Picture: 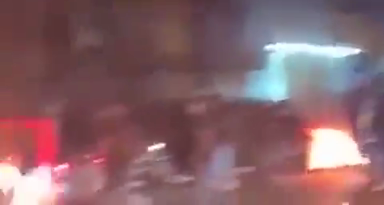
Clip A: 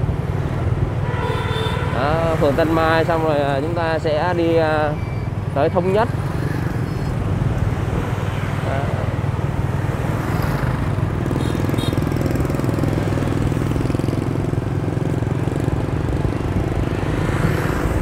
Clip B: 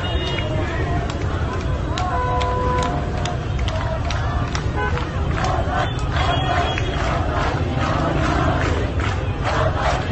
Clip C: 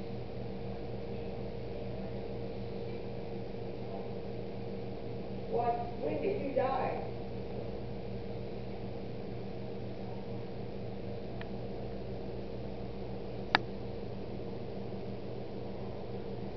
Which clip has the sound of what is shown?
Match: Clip B